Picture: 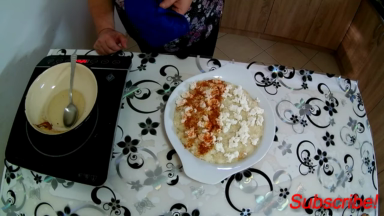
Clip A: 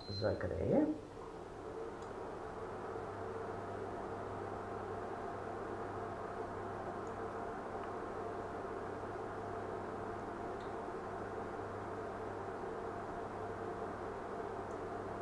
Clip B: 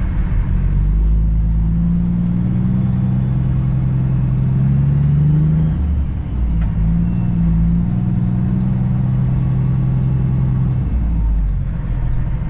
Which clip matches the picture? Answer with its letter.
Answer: A